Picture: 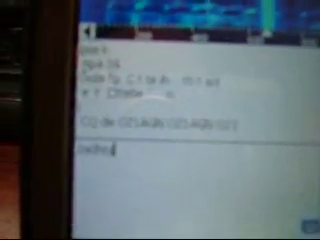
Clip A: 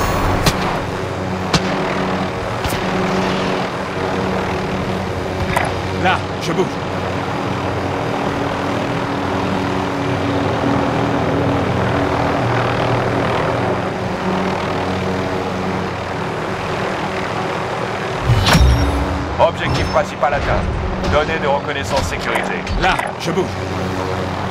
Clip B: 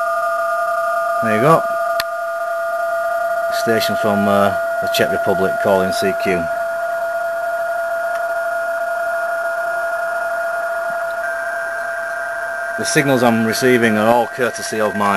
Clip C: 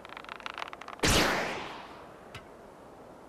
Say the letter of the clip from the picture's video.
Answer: B